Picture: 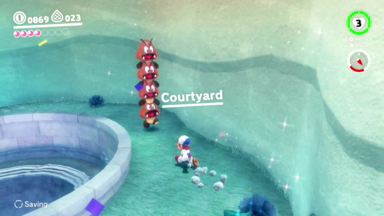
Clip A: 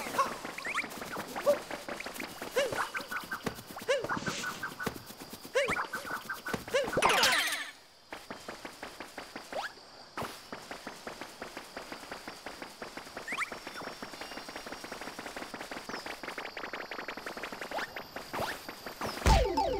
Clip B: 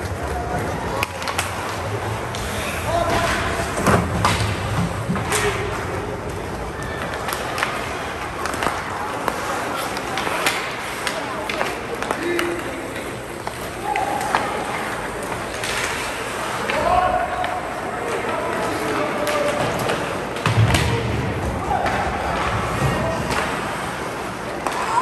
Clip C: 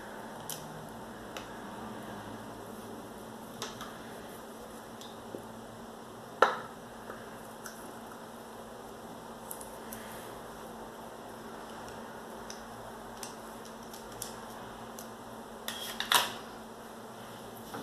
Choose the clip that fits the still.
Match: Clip A